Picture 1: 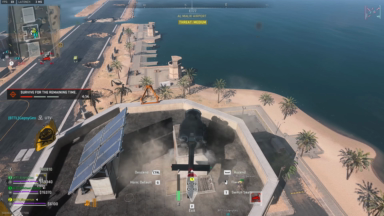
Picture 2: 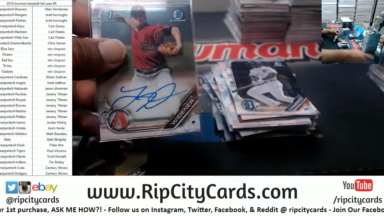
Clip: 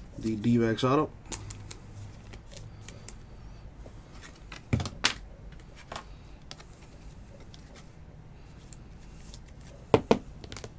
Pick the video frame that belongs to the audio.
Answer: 2